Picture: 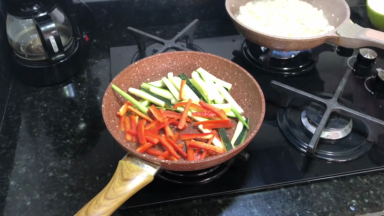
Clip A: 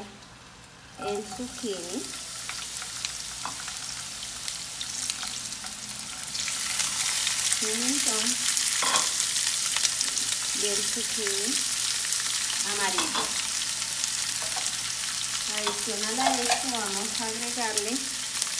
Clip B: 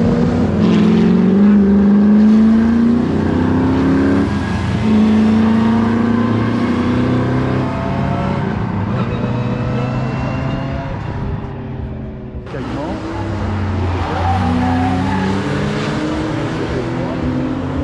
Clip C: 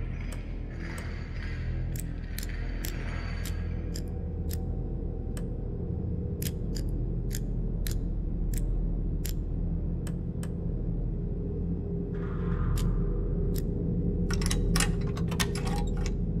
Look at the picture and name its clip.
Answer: A